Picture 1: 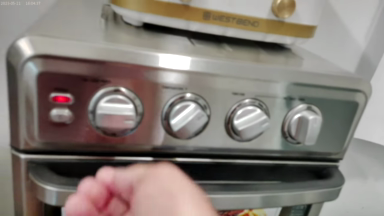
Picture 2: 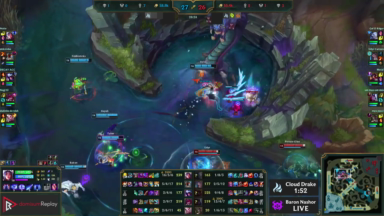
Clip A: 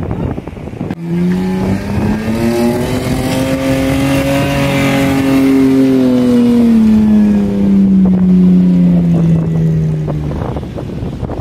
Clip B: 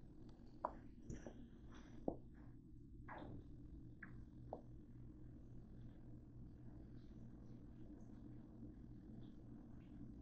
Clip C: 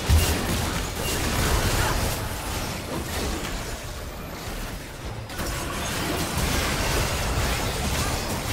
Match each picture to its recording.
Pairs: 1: B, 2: C